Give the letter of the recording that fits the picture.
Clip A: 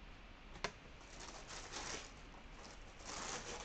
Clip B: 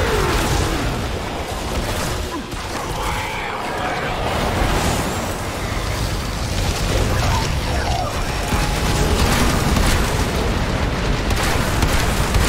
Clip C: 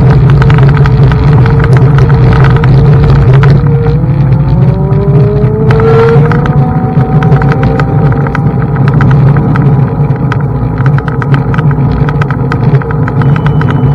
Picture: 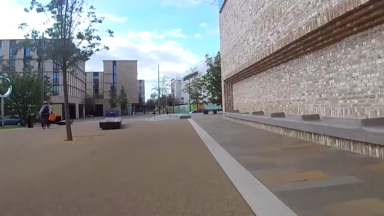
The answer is C